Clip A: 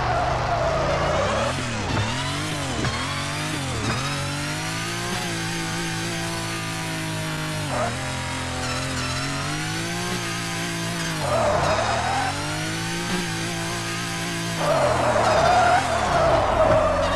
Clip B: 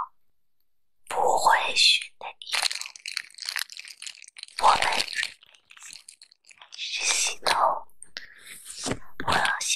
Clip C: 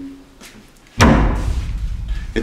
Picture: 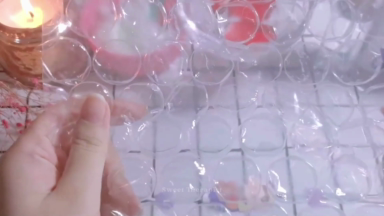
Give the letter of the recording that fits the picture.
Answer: B